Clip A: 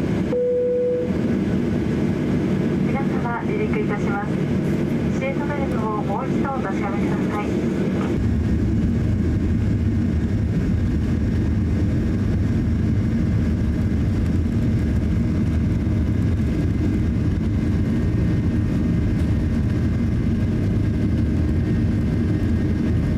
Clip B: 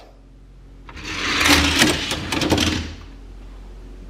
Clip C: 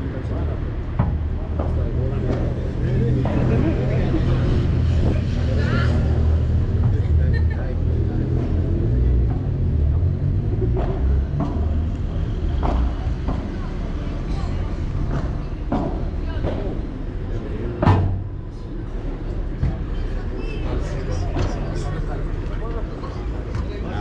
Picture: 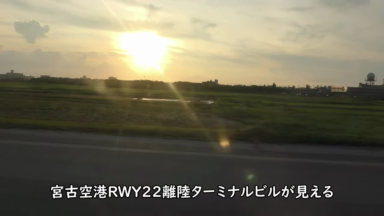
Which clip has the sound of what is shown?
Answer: A